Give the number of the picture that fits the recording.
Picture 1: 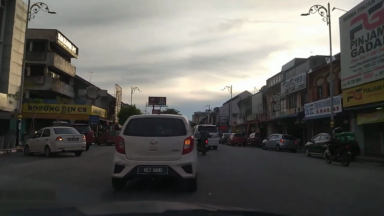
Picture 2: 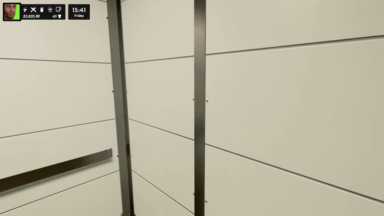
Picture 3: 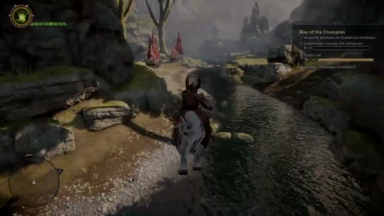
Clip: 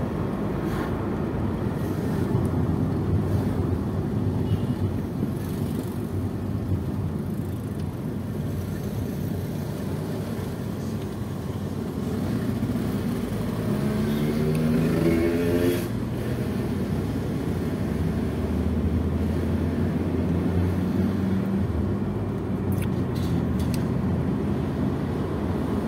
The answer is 1